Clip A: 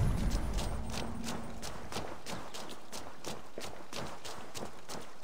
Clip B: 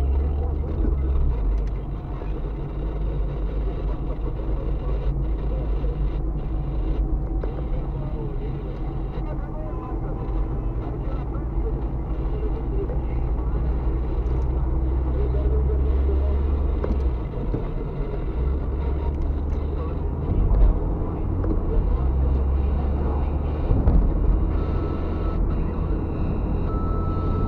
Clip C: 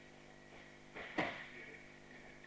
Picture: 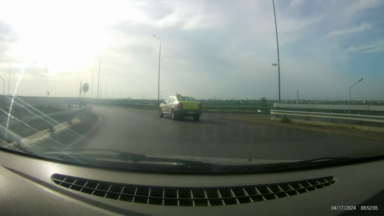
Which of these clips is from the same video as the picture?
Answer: B